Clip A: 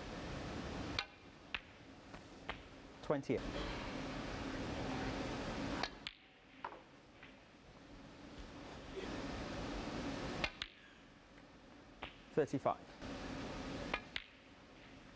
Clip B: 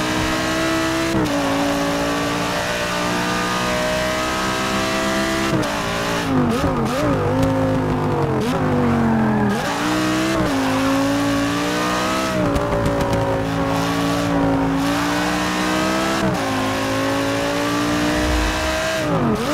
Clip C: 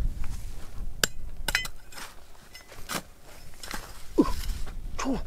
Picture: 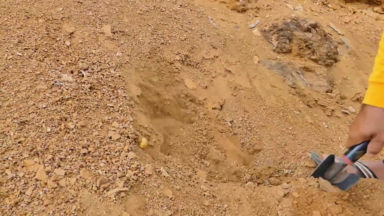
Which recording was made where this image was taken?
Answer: C